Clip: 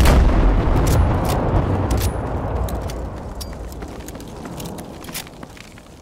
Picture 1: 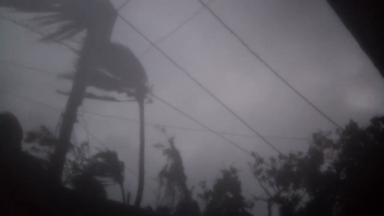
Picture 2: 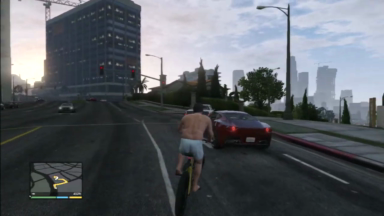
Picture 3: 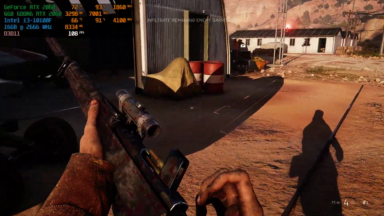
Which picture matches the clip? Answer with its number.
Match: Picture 3